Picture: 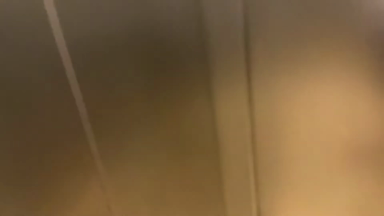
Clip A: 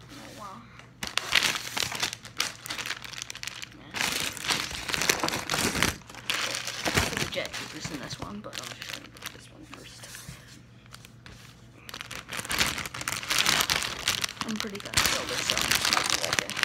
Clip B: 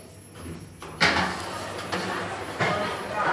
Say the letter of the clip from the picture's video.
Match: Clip B